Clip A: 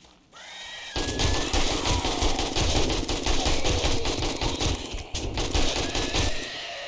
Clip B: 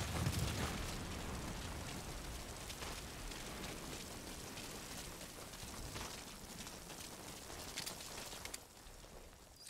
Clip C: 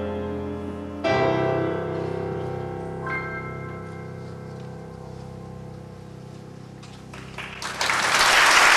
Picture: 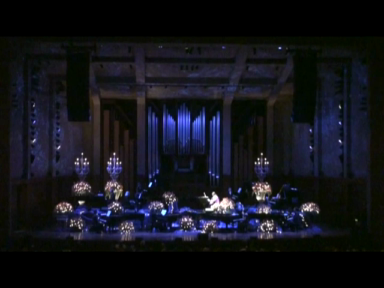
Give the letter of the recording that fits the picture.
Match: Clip C